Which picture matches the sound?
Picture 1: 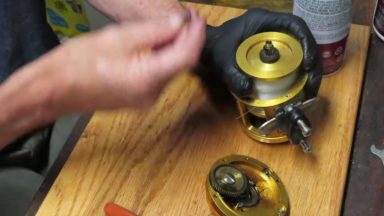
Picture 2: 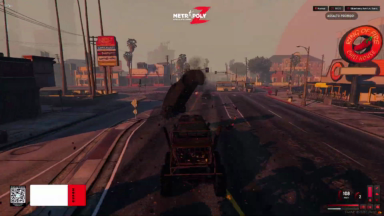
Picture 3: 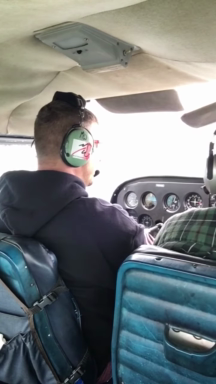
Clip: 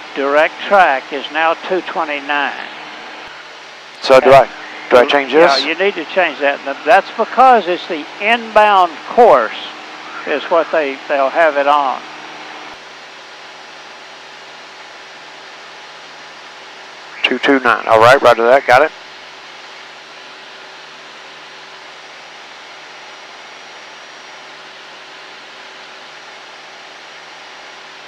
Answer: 3